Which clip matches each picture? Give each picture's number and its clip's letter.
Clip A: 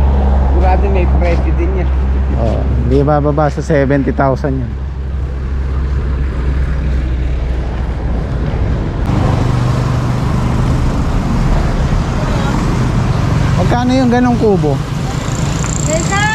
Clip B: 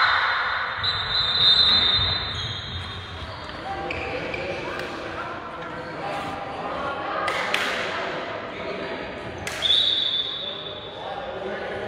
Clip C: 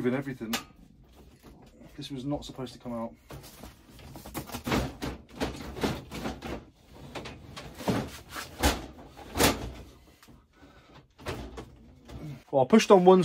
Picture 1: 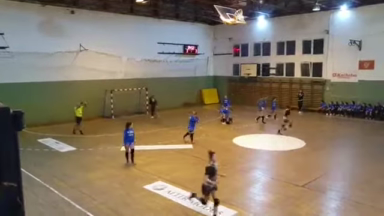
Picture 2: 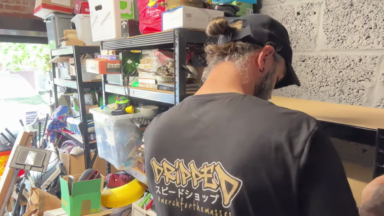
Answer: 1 B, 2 C